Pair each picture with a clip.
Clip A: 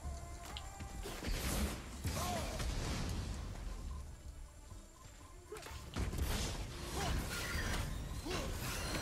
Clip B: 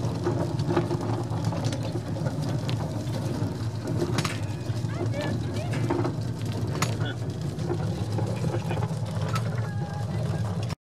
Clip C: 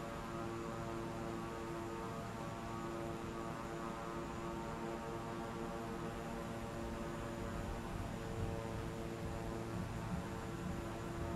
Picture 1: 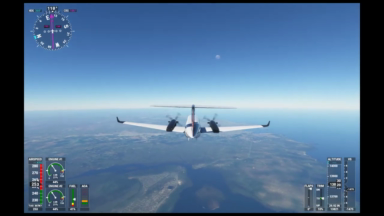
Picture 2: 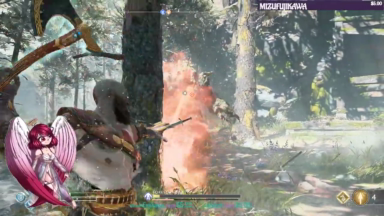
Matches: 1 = C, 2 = A